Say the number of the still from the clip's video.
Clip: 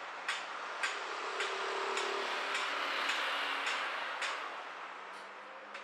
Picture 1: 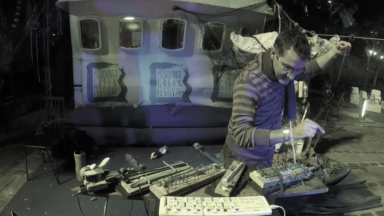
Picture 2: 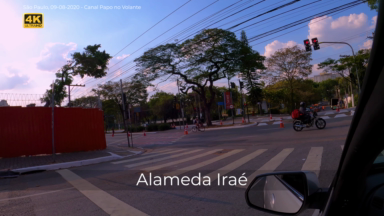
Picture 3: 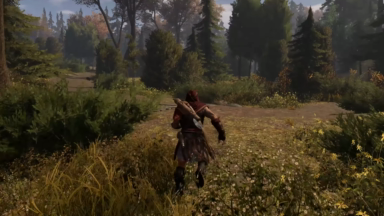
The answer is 2